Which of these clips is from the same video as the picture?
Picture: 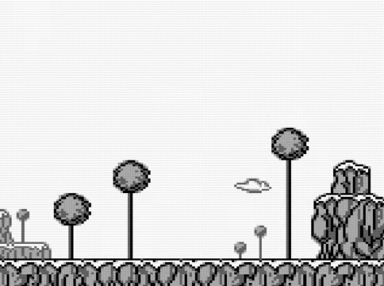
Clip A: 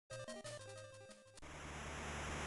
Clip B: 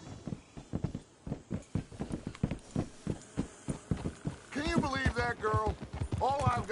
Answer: A